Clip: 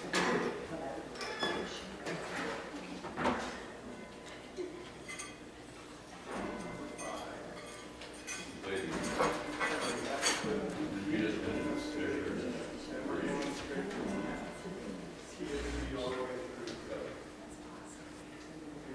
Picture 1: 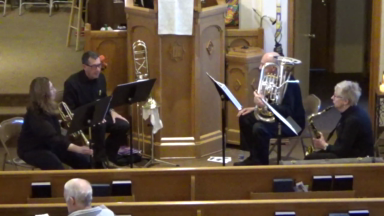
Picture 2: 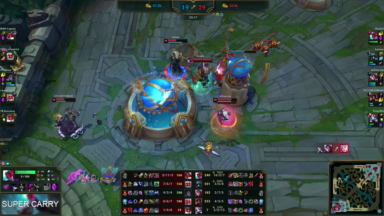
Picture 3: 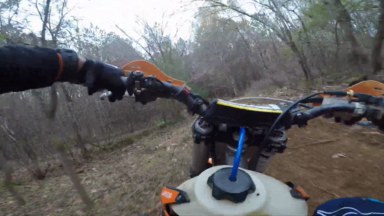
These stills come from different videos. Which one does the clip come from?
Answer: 1